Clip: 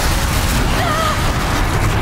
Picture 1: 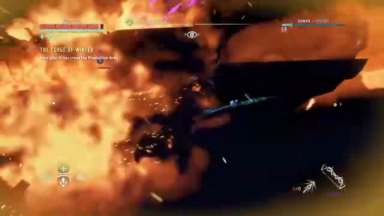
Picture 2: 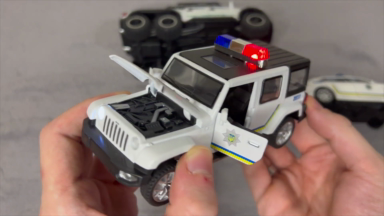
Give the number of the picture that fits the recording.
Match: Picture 1